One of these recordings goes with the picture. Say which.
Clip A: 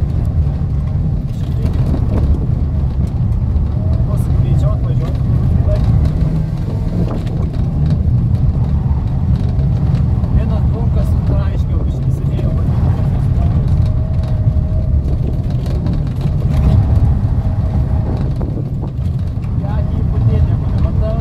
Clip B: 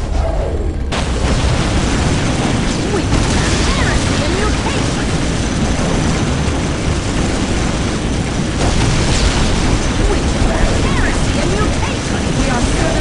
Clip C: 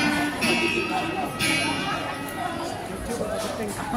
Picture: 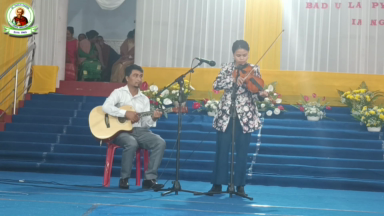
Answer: C